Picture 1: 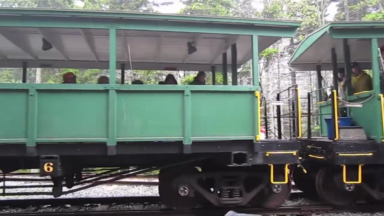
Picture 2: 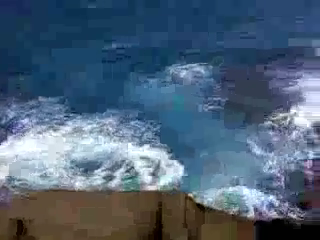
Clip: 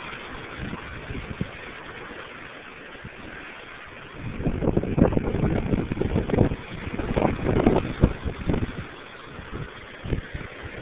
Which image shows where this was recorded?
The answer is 2